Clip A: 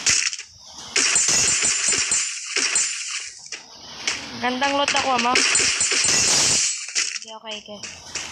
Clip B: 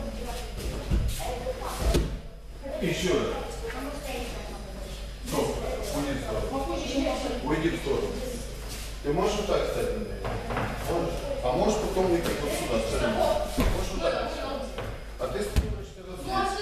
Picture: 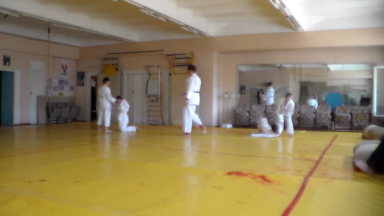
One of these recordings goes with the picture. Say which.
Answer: B